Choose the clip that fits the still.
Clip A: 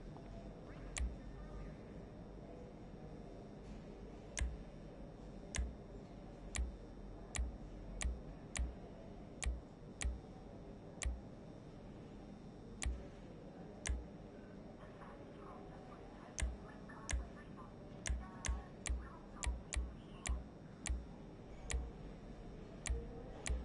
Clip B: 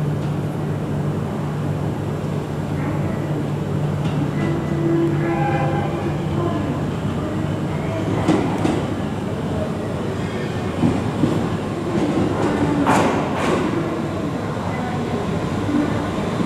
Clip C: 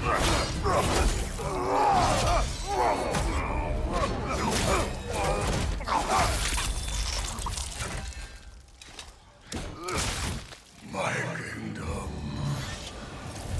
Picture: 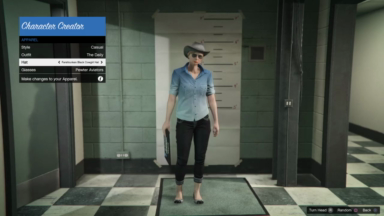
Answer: A